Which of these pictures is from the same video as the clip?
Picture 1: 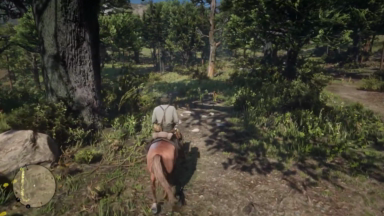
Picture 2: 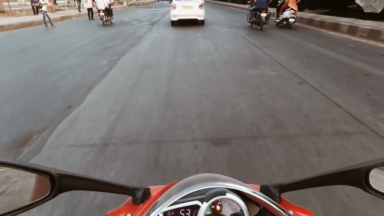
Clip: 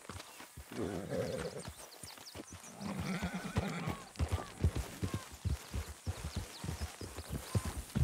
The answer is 1